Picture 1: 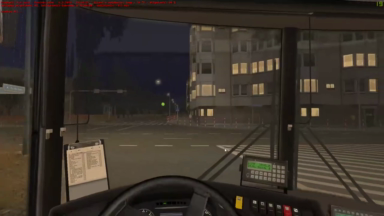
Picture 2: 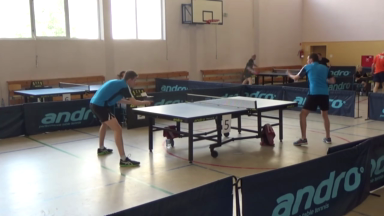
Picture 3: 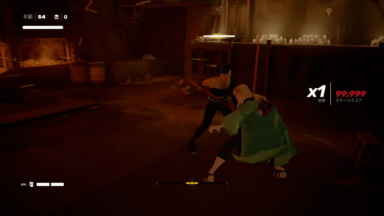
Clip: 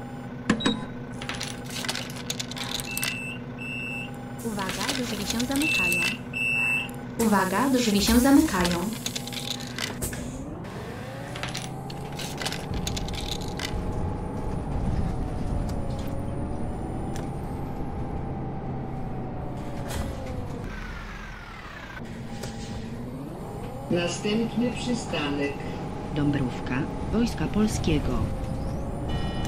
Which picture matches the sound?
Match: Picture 1